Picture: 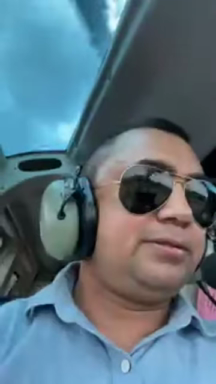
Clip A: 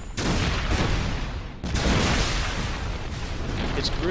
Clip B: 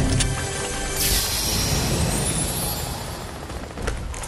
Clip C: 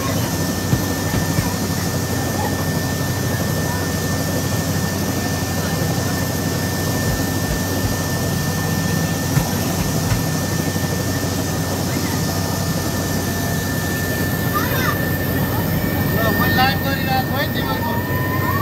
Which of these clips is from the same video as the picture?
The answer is C